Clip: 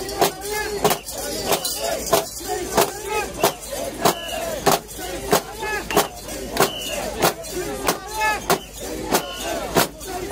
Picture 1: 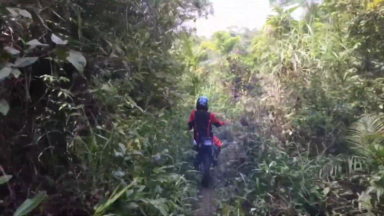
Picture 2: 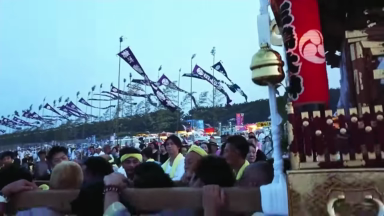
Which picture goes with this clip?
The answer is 2